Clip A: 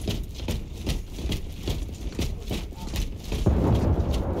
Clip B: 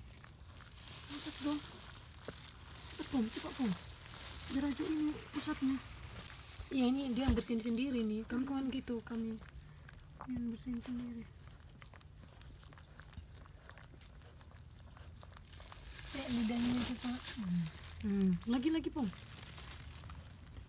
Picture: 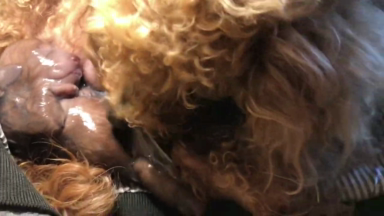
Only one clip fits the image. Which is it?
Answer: B